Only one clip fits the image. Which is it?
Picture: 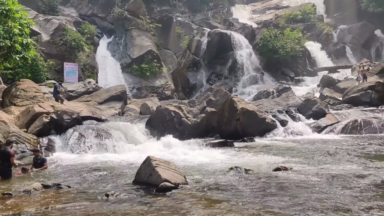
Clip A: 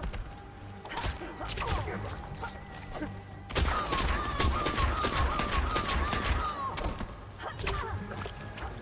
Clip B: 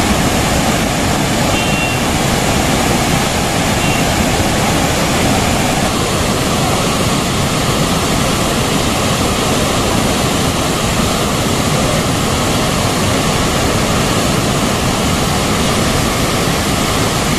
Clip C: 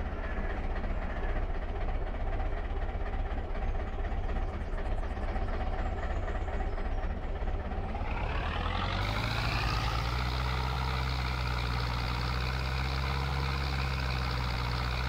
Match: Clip B